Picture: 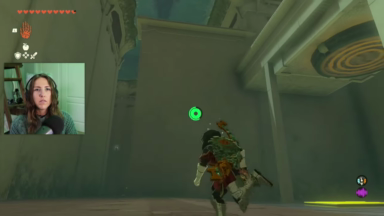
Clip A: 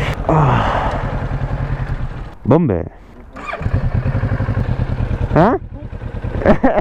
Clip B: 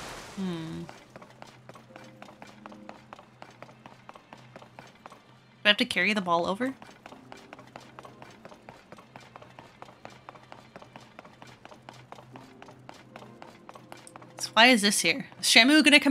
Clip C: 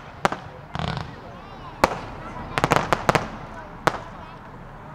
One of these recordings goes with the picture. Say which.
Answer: B